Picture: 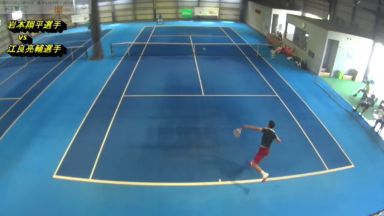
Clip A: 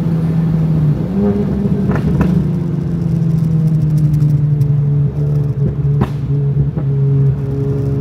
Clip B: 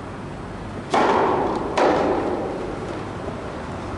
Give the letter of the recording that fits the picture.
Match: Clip B